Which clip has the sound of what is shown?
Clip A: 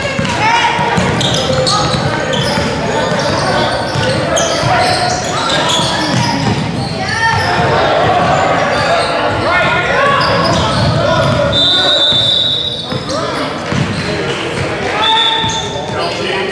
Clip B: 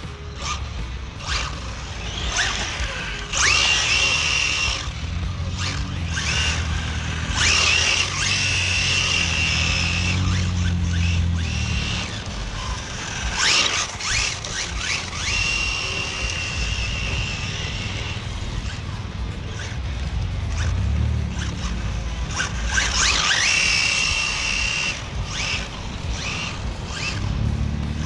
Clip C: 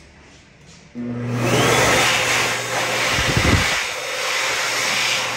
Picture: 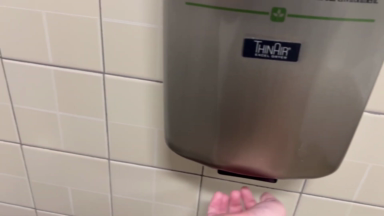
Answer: C